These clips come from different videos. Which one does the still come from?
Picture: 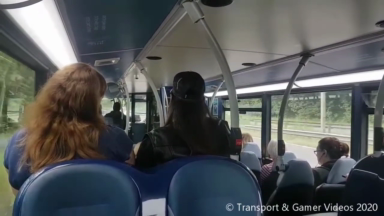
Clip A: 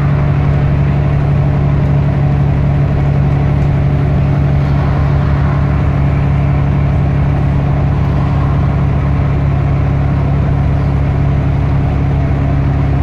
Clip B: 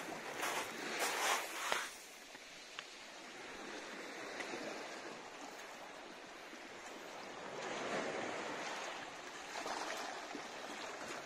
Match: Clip A